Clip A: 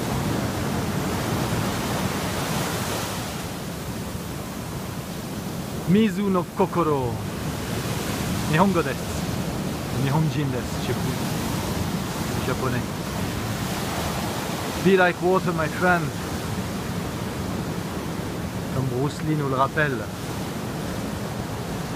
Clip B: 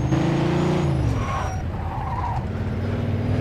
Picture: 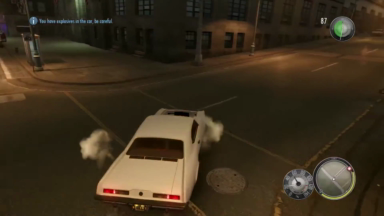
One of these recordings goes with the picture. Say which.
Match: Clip B